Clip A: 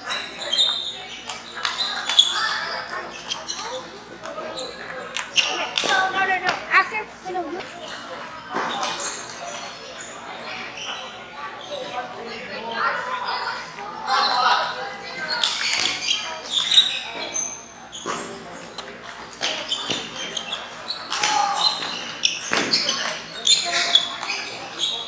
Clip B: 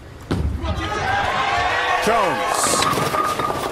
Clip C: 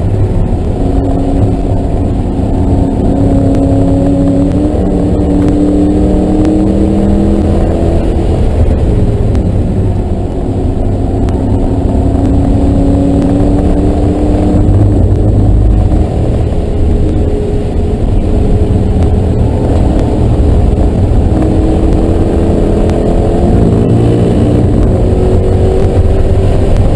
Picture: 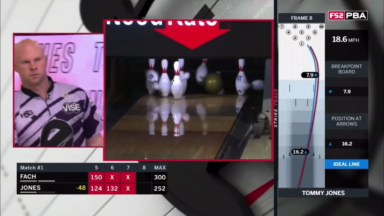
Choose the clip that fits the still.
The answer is B